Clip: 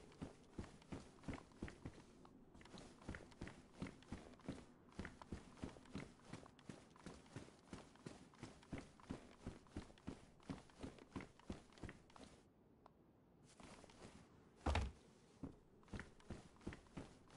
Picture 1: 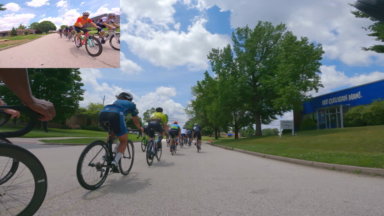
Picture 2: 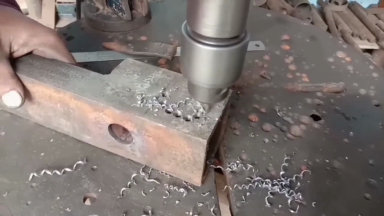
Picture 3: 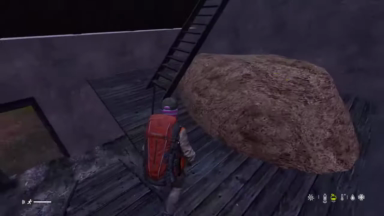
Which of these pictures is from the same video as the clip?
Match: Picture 3